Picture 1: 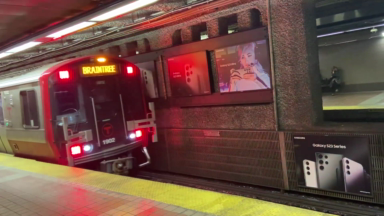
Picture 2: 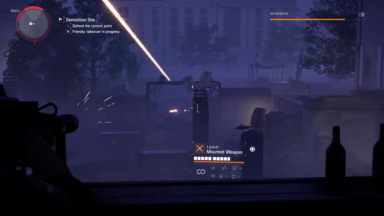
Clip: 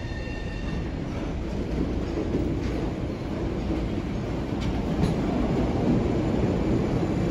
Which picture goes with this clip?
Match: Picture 1